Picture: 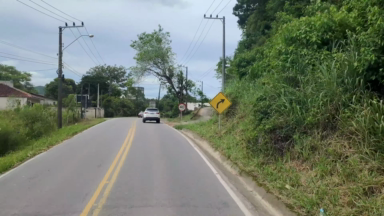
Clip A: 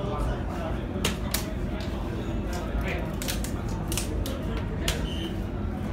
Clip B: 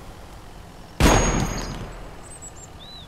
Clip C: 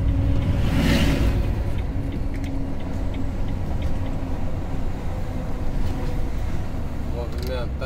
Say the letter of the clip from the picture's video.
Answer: C